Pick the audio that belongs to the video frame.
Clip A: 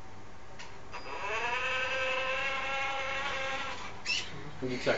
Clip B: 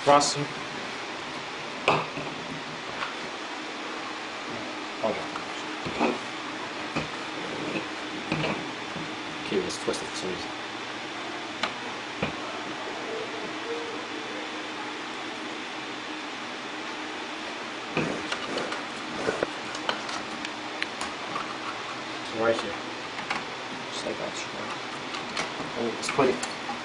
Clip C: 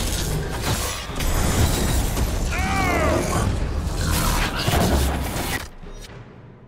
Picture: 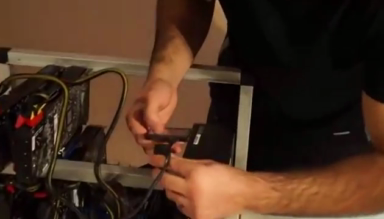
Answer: B